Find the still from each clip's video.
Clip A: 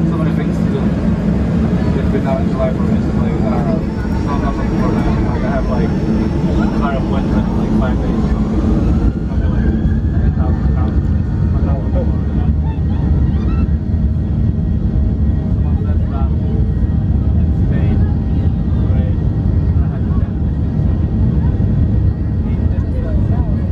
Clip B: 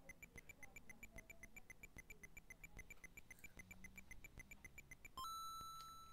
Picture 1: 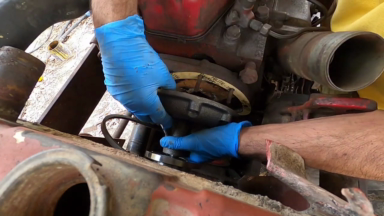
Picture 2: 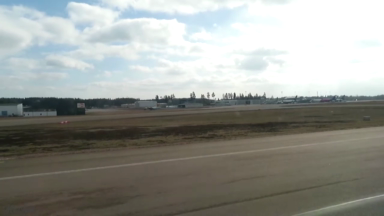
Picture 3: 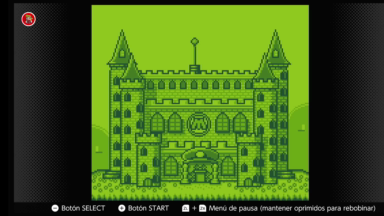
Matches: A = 2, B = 3